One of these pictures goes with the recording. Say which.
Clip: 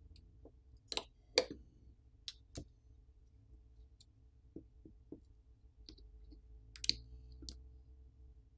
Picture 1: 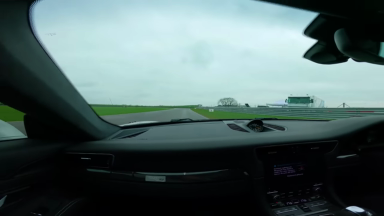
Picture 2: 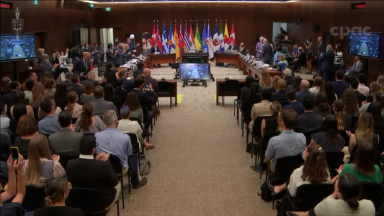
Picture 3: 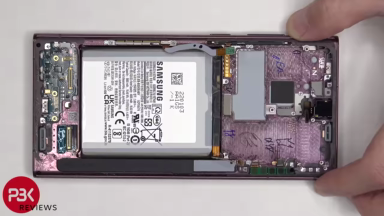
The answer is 3